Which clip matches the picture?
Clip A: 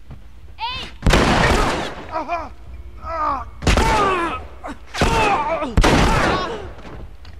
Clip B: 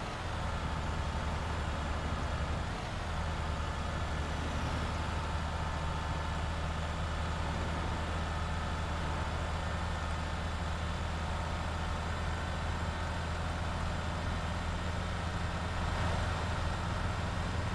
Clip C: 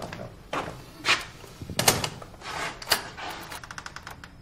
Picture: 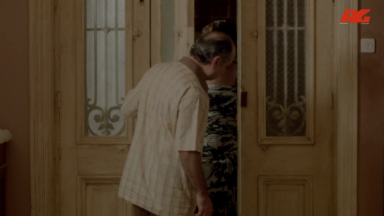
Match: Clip C